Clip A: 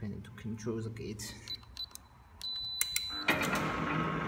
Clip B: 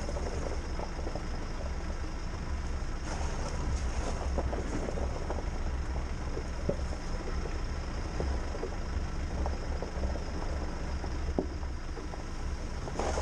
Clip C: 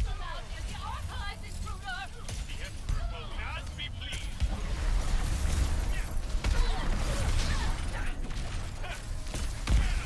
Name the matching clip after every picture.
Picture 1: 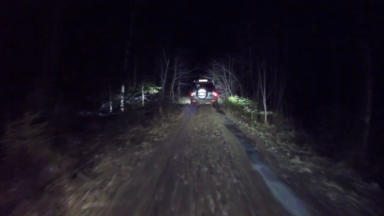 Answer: B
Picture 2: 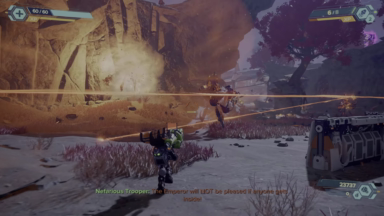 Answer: C